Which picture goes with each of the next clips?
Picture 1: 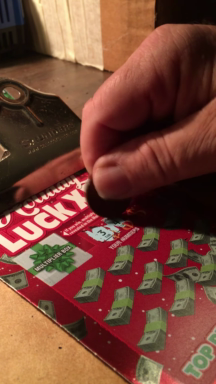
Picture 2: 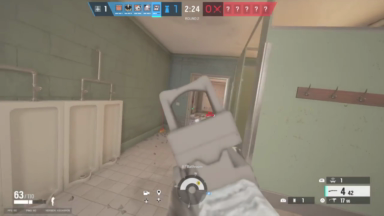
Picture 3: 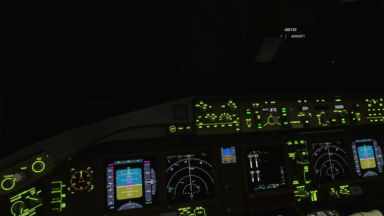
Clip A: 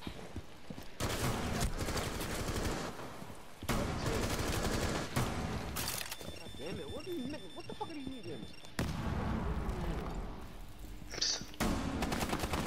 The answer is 2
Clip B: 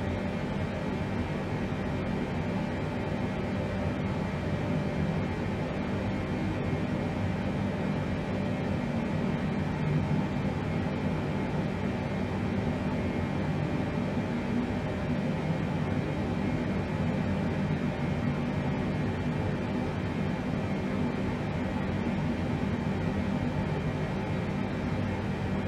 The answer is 3